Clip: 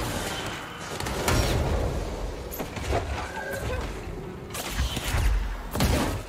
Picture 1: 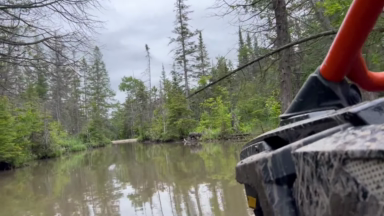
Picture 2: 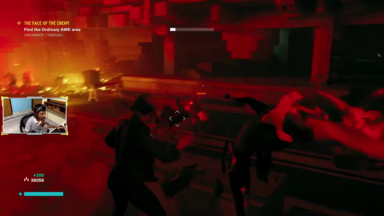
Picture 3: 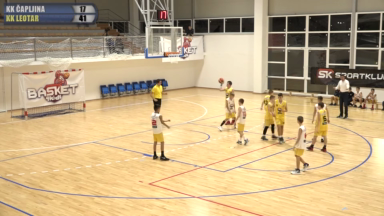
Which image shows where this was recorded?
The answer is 2